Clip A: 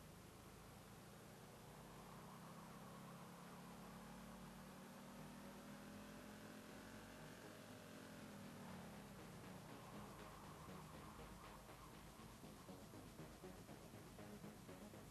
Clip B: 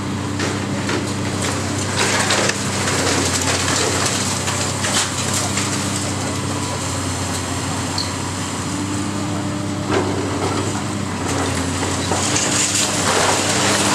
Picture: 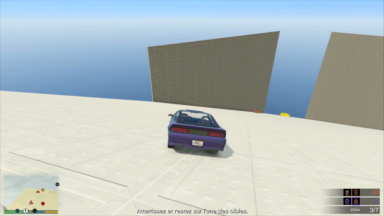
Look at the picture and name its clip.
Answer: A